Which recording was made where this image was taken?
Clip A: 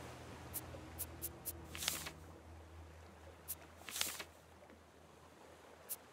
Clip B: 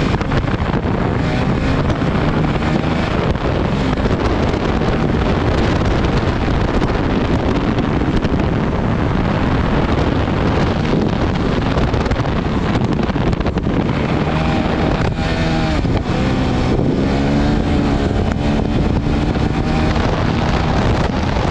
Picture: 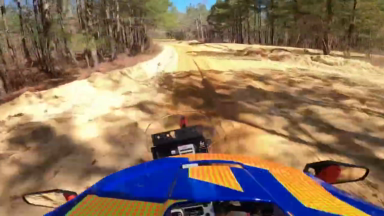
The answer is B